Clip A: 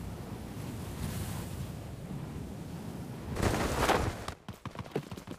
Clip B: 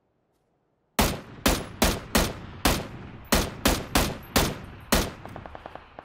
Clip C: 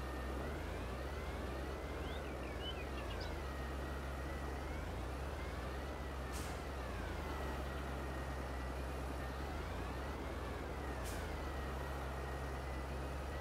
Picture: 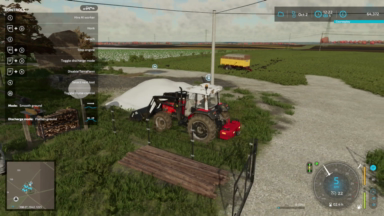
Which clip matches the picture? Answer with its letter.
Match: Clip C